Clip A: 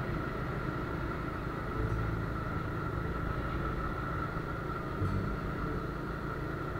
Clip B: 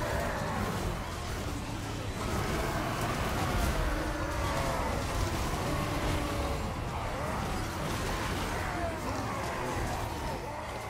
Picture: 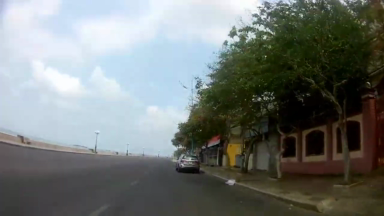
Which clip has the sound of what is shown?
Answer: A